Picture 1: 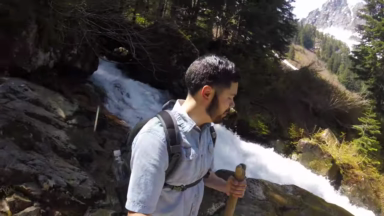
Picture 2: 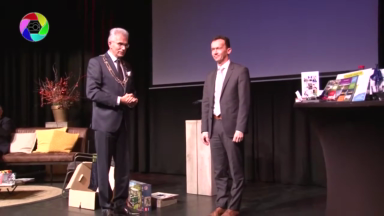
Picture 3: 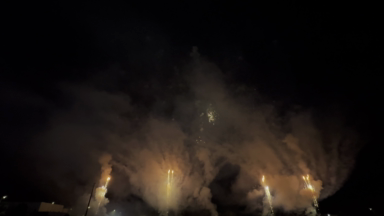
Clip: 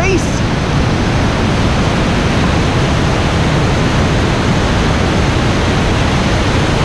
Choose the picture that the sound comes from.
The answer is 1